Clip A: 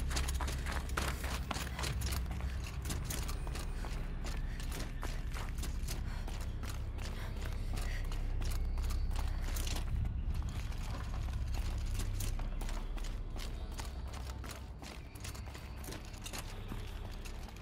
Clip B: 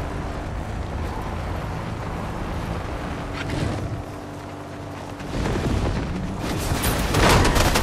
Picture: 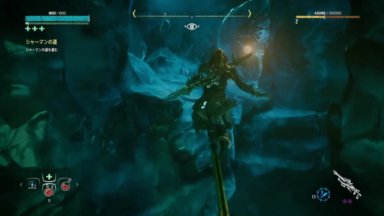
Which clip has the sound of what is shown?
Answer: A